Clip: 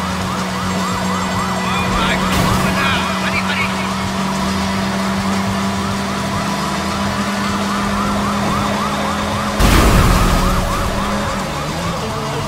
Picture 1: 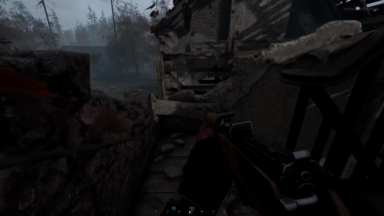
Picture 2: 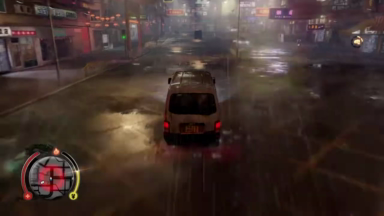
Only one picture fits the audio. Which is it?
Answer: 2